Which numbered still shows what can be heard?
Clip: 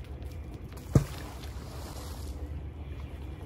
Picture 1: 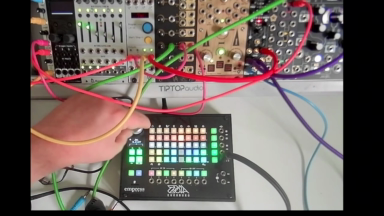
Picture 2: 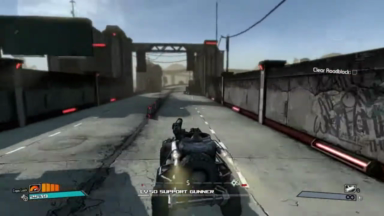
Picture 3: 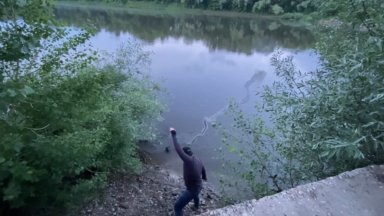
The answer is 3